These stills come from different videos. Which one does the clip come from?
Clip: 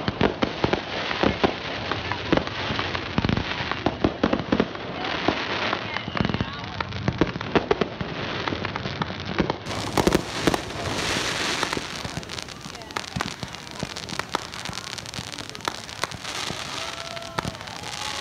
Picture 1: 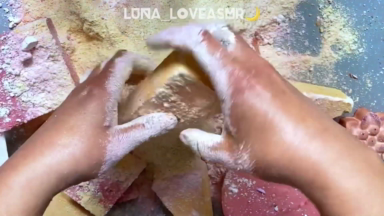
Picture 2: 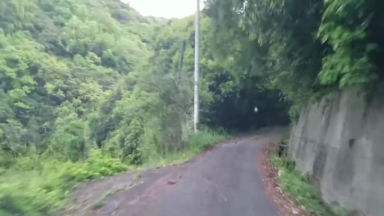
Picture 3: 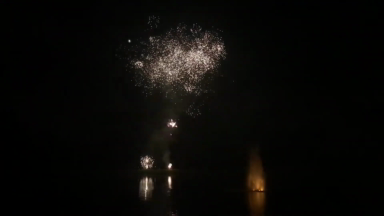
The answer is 3